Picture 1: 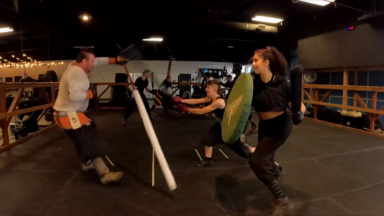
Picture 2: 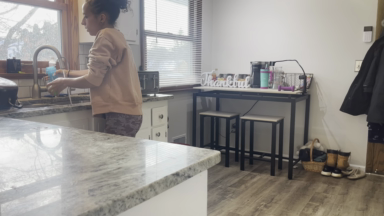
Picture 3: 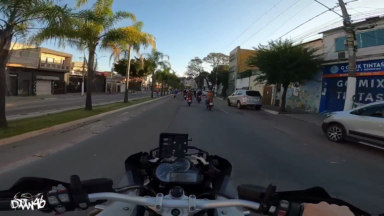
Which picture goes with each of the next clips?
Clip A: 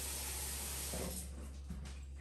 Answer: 2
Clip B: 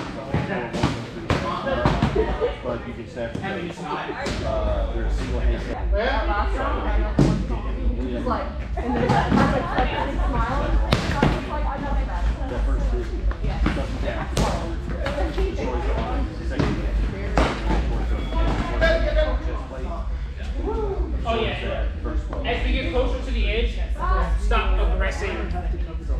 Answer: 1